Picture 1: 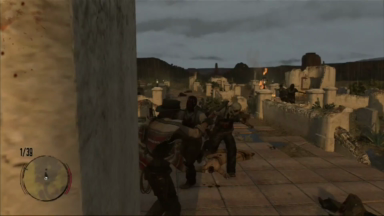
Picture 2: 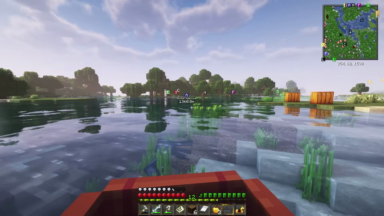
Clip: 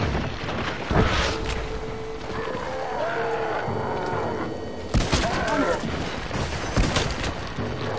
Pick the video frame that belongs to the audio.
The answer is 1